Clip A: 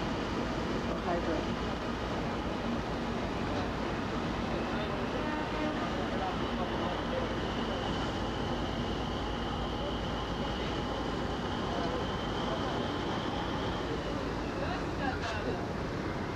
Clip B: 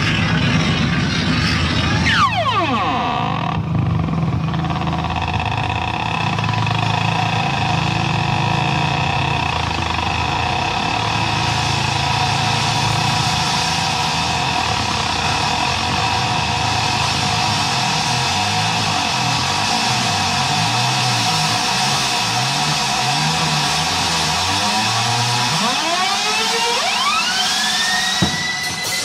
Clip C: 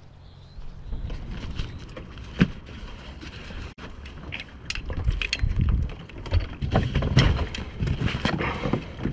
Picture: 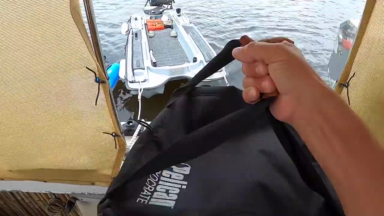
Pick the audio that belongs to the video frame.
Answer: C